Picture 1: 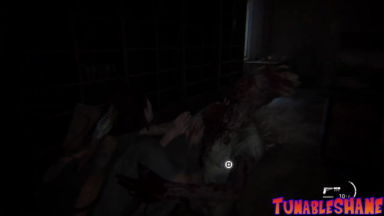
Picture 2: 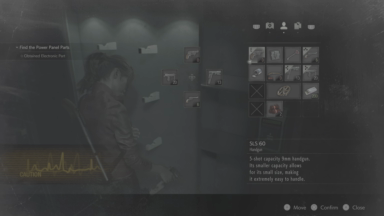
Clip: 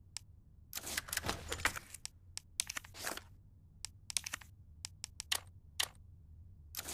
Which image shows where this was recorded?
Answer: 2